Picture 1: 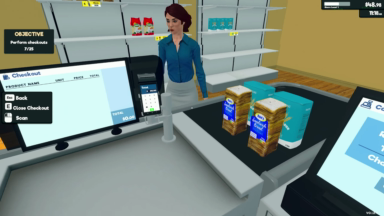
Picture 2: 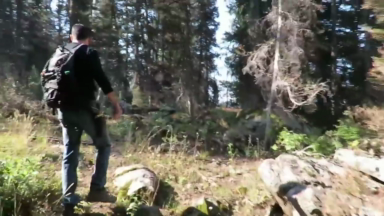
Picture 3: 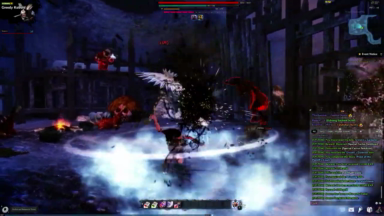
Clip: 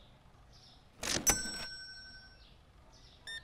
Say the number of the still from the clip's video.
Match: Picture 1